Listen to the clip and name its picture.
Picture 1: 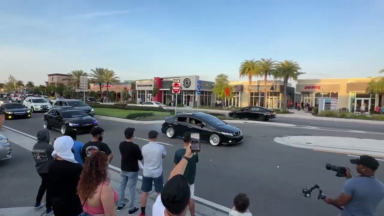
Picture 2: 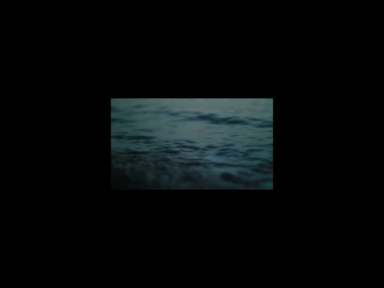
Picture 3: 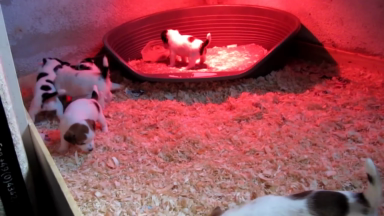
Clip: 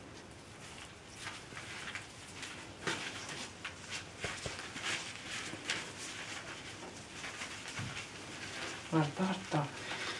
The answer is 3